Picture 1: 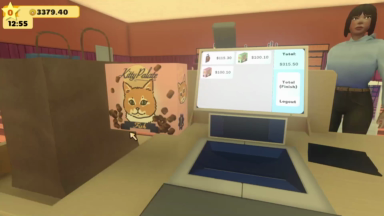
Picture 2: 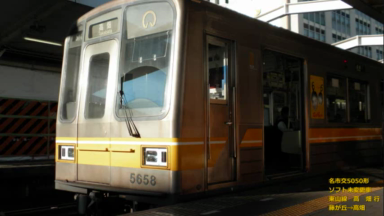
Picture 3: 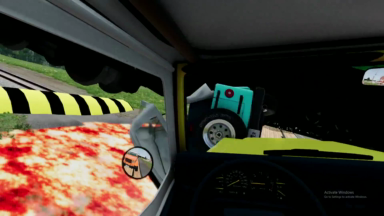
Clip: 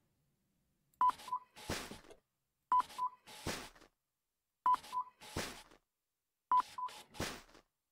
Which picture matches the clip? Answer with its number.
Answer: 1